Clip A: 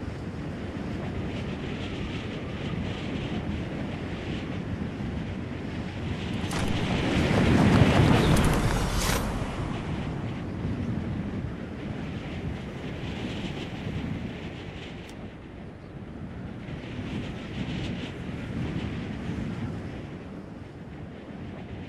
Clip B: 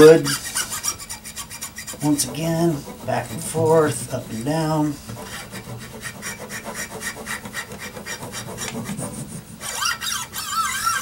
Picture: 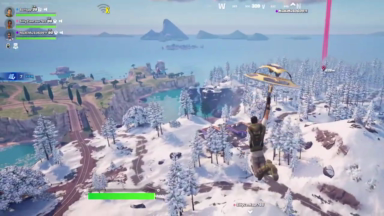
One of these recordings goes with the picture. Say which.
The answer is A